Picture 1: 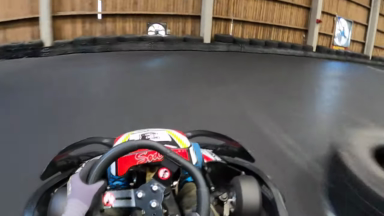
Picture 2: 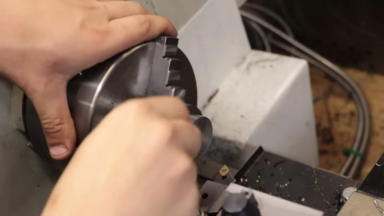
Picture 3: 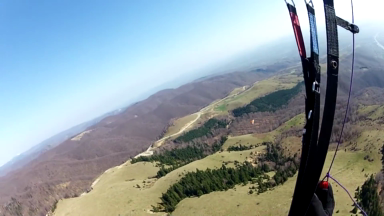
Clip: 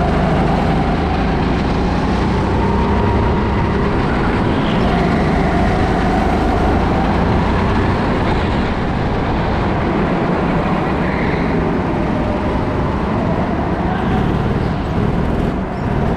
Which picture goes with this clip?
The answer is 1